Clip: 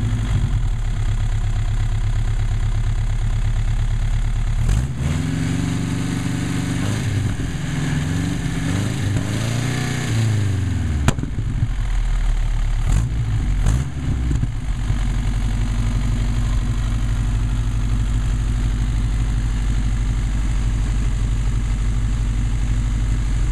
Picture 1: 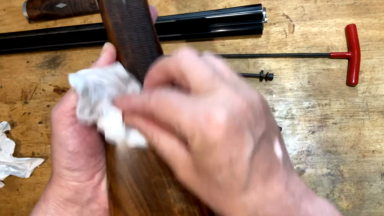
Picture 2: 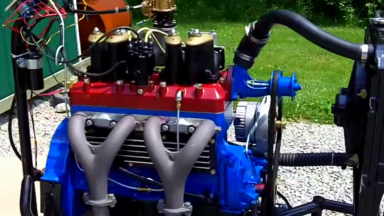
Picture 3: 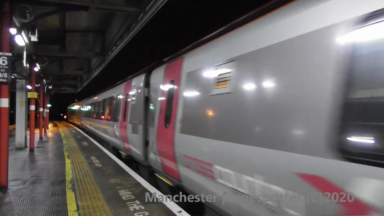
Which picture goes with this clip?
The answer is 2